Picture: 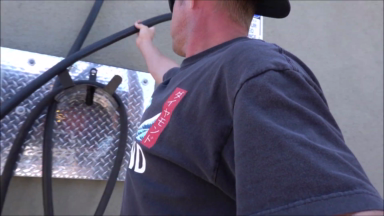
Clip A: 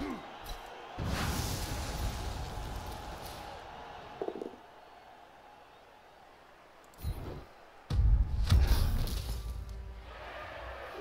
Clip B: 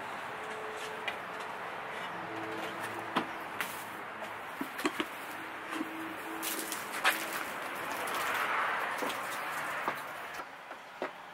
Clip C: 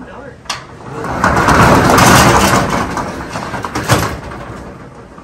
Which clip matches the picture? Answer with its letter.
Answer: B